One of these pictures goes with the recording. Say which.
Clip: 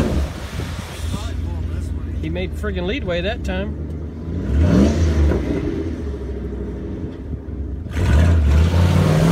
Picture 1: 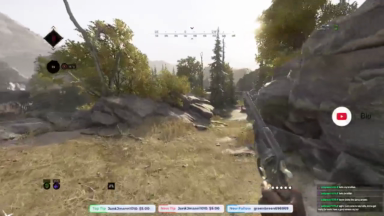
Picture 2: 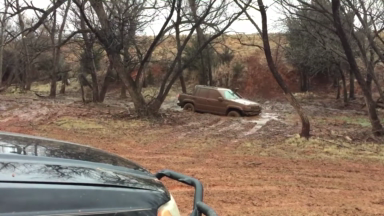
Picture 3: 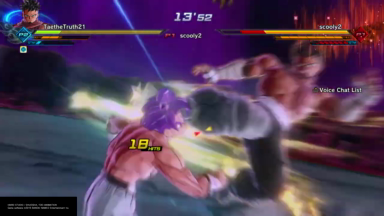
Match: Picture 2